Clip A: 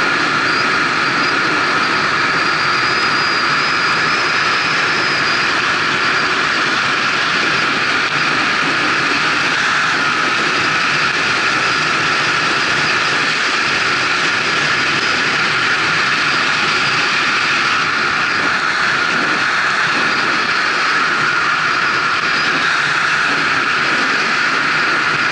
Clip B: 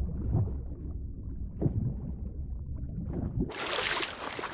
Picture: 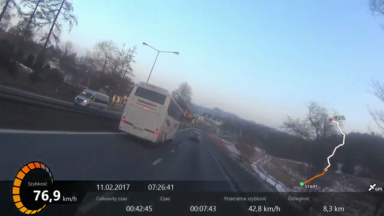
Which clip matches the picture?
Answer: A